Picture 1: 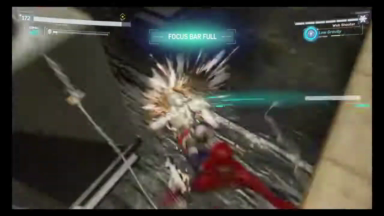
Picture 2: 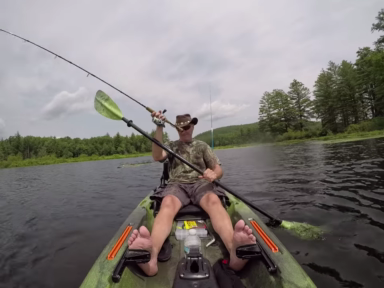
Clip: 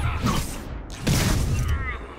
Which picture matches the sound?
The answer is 1